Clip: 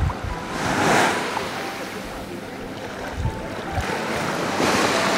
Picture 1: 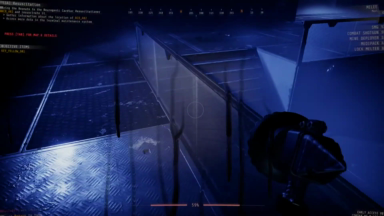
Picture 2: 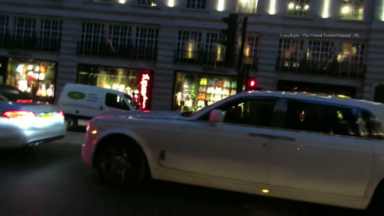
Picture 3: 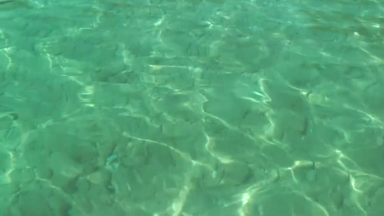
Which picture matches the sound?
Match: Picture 3